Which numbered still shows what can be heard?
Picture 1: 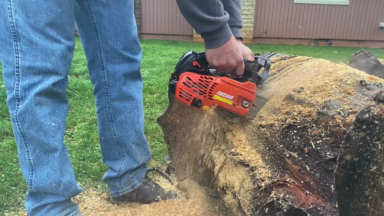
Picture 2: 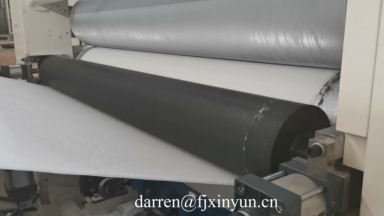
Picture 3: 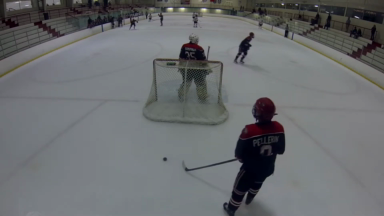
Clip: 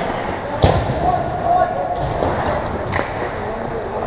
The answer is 3